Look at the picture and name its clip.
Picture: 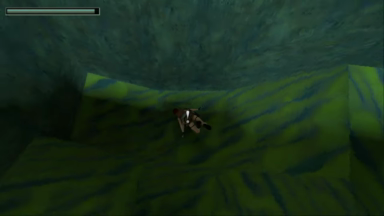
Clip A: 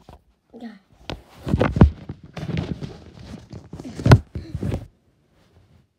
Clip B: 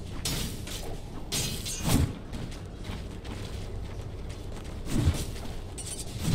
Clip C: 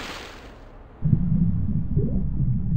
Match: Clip C